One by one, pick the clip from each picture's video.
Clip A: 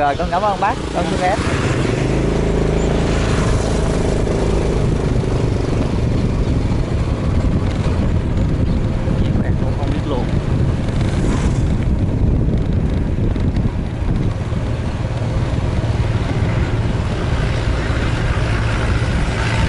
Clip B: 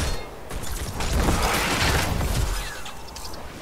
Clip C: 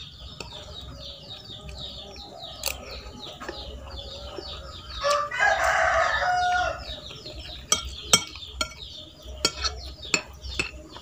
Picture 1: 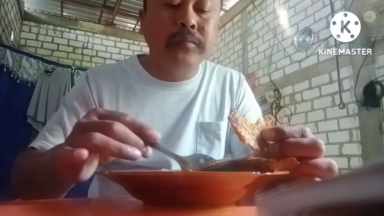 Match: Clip C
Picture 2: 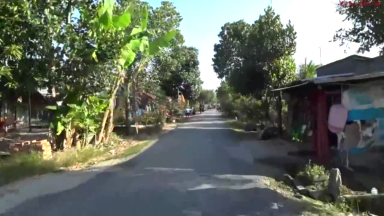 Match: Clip A